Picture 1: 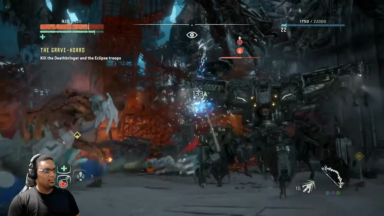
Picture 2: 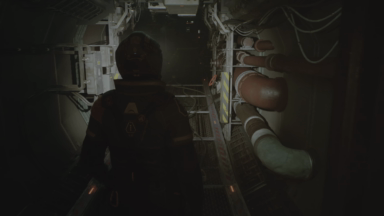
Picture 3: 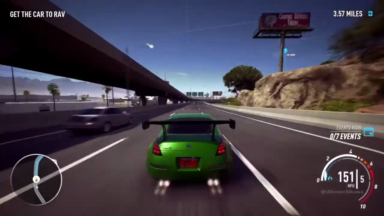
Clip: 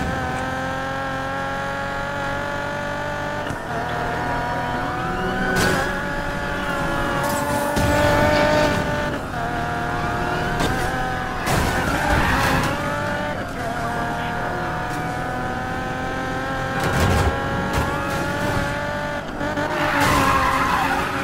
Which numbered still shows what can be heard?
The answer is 3